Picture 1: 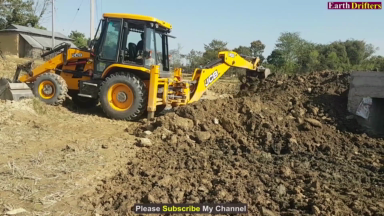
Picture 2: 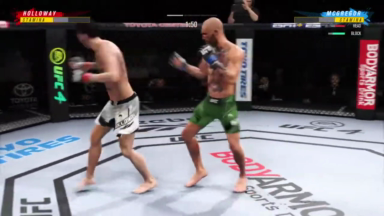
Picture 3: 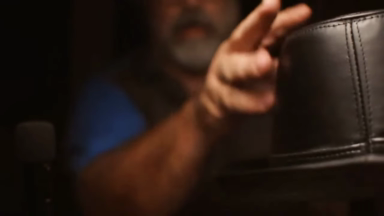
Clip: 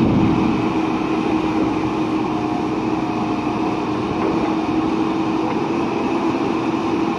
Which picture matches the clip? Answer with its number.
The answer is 1